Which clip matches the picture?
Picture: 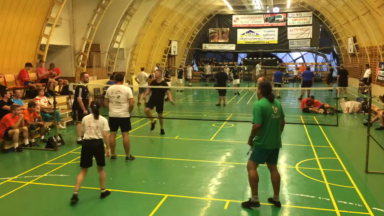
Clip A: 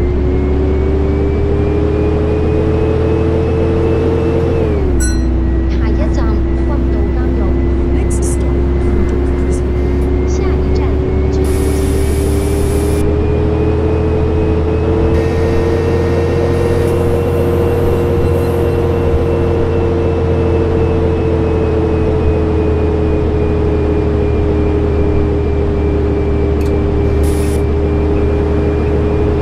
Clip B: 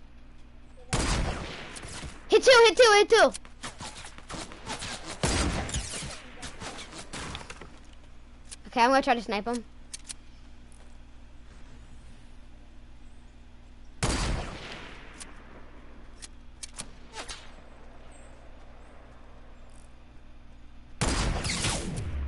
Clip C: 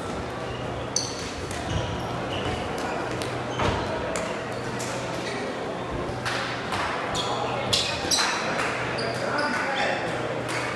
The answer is C